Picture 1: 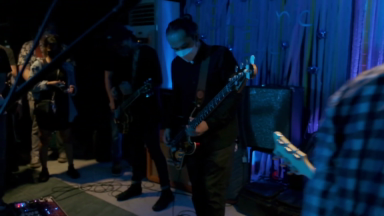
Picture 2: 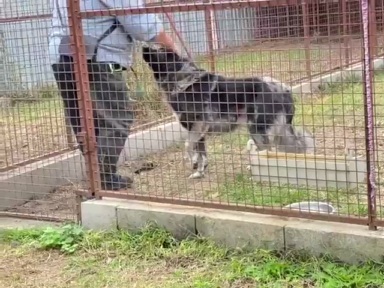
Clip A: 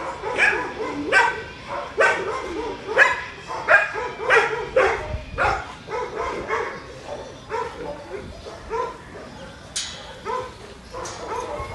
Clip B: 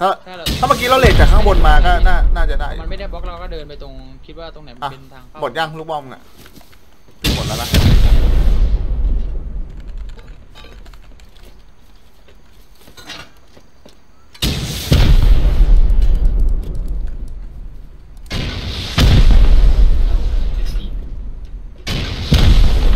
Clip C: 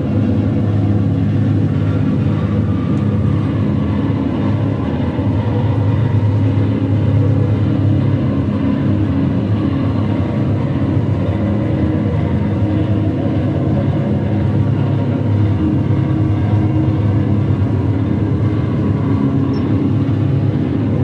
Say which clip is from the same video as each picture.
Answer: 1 C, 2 A